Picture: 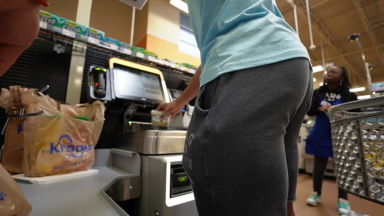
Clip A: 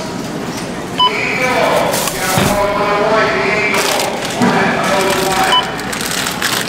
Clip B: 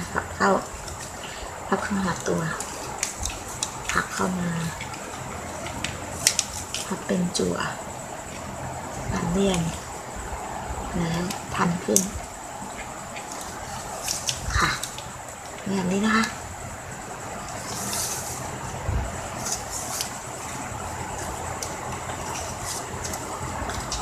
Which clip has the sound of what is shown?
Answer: A